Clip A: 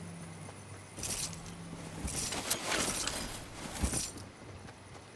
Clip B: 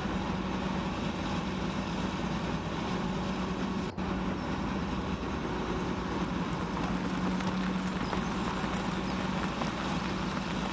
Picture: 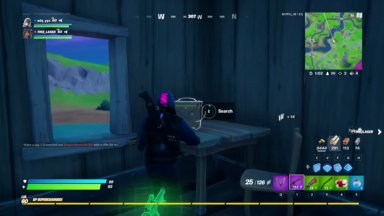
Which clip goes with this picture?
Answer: A